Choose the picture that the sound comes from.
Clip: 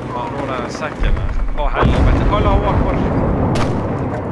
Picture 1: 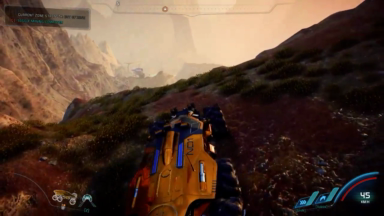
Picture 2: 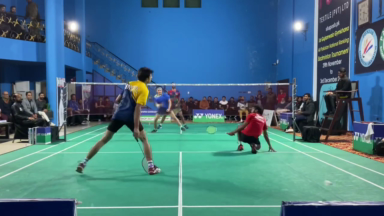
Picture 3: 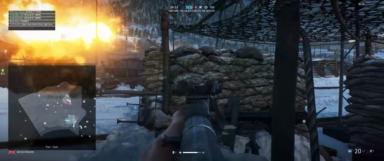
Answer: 3